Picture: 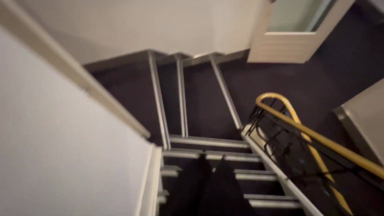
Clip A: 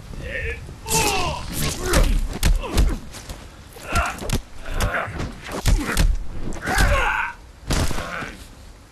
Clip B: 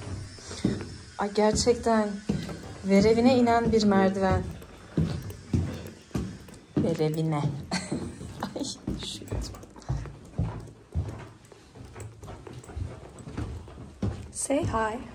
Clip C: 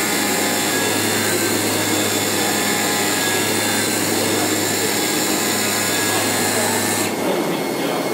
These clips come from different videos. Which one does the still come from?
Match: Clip B